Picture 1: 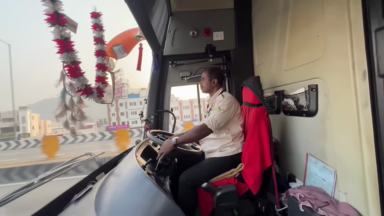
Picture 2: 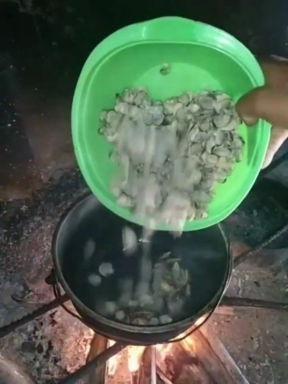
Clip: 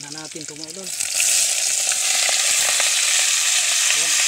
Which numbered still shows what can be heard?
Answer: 2